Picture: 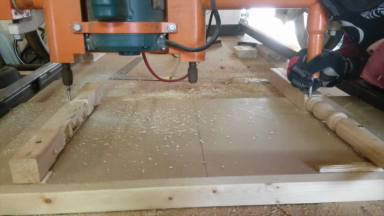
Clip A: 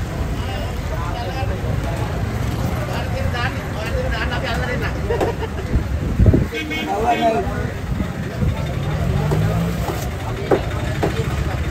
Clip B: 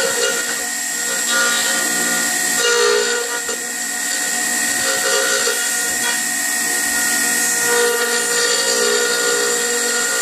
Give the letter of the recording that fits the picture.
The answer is B